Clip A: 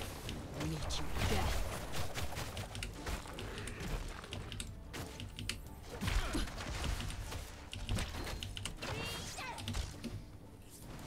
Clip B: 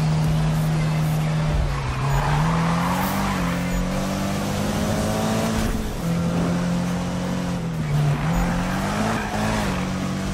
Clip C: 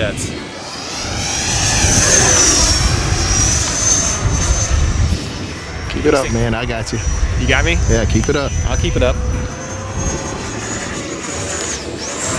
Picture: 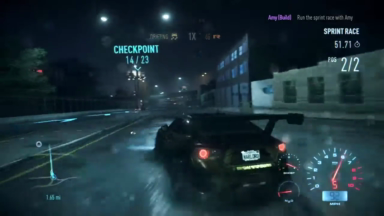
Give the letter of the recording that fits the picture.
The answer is B